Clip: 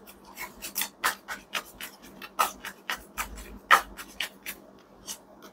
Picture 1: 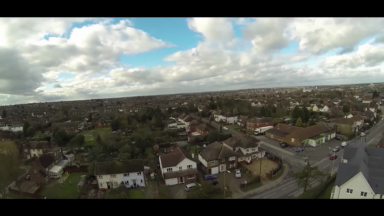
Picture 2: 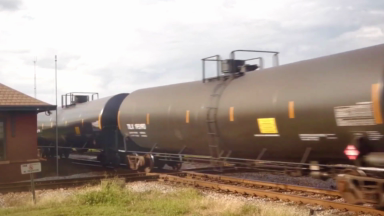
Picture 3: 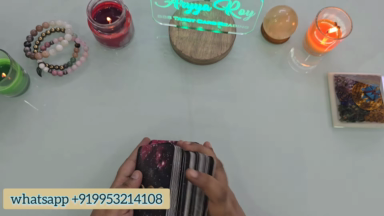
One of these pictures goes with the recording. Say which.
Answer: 3